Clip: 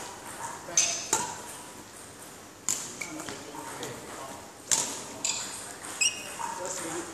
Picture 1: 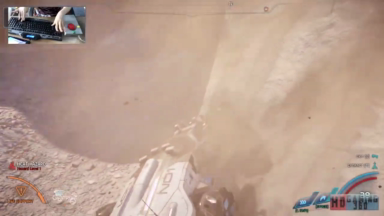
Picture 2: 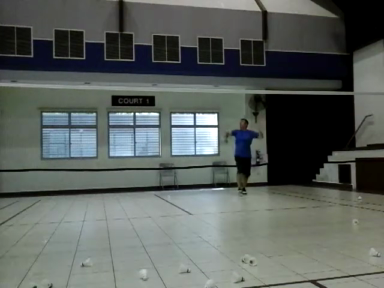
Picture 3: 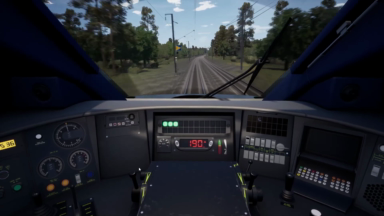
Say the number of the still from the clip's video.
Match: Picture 2